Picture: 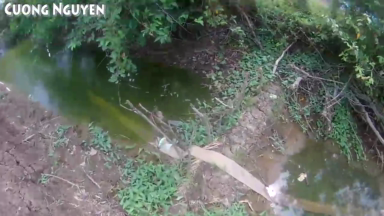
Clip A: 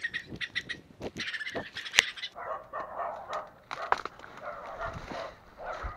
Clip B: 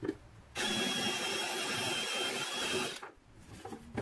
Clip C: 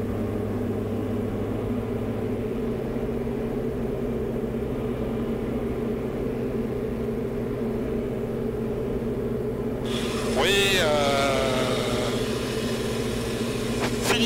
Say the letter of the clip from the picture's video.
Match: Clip A